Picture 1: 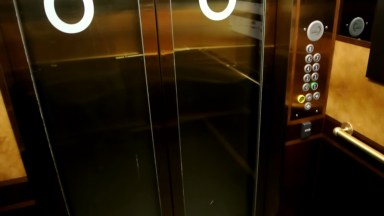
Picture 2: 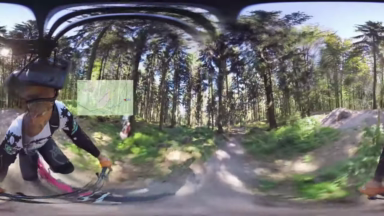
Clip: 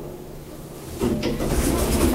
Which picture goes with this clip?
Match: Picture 1